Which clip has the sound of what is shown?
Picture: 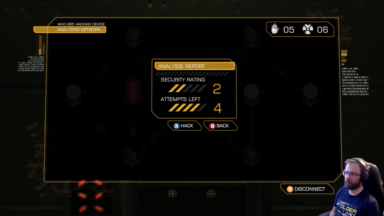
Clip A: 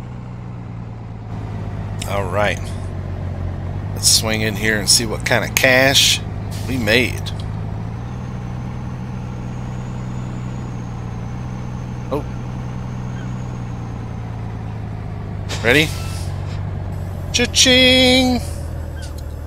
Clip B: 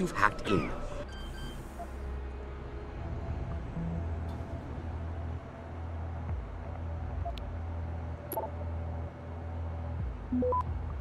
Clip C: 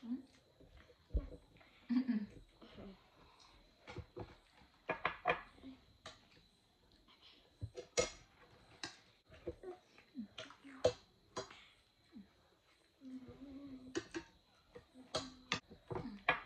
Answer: B